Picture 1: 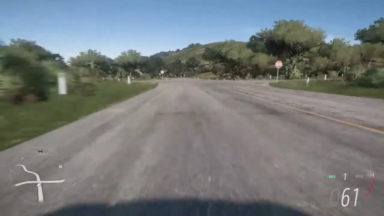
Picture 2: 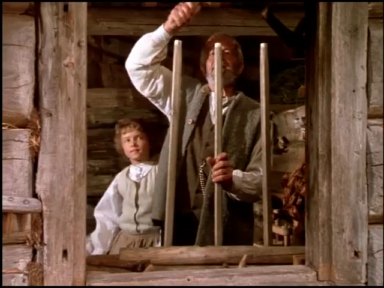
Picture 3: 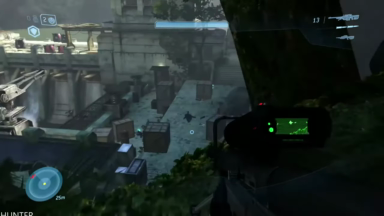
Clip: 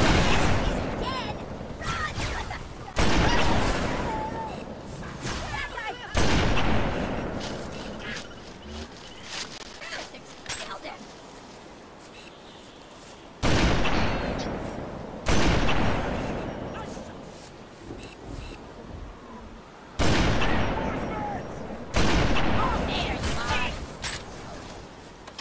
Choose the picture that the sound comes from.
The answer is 3